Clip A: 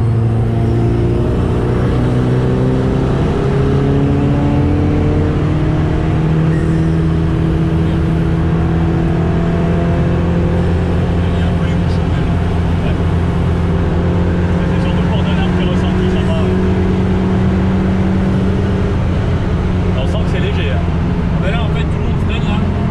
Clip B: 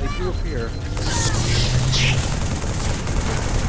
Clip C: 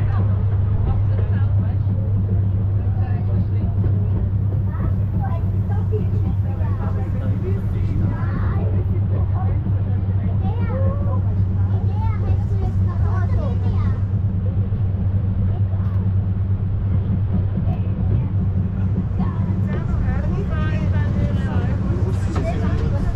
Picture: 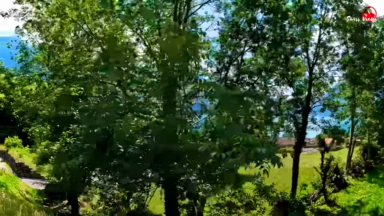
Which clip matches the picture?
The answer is C